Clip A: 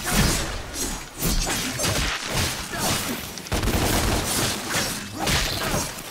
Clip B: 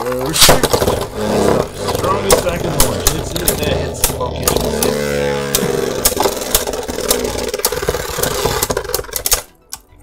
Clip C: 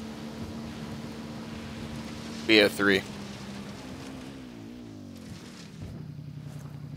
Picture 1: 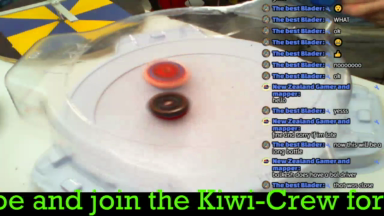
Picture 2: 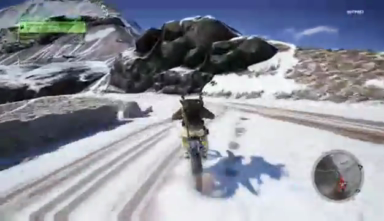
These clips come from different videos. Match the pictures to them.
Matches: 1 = B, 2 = C